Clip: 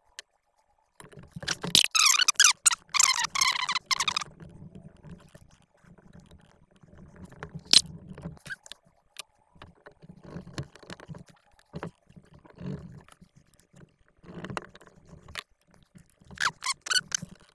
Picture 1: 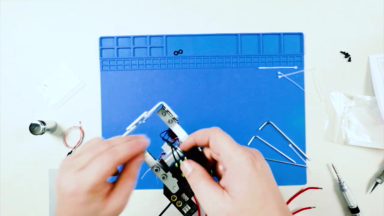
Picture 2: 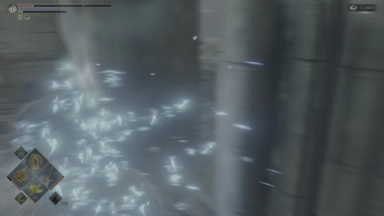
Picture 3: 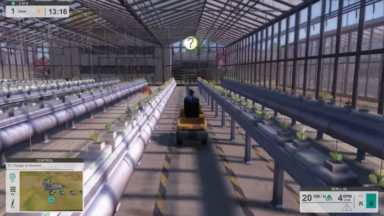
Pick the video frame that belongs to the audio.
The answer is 1